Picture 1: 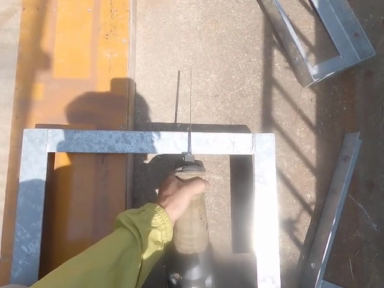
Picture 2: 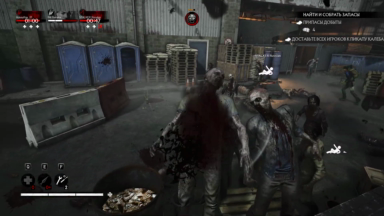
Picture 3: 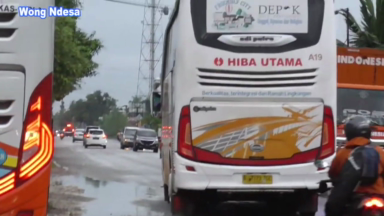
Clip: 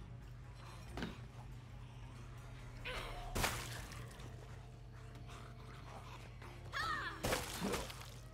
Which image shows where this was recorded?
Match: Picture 2